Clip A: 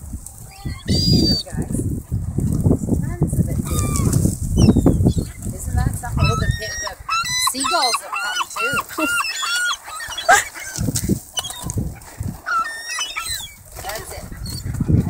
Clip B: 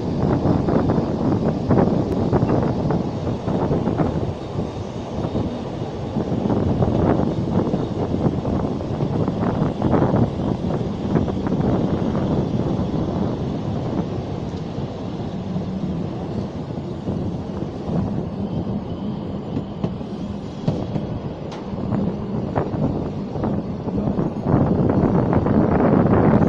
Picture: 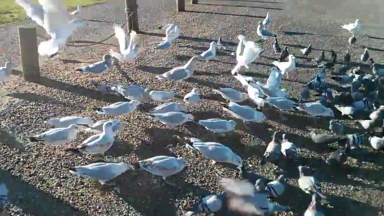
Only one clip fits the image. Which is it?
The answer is A